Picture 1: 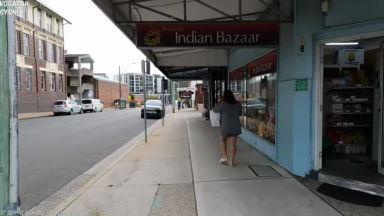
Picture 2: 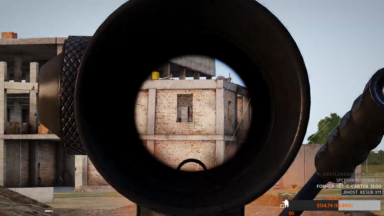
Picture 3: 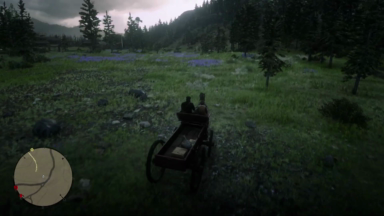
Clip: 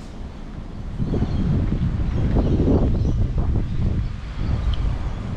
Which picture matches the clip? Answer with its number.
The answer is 1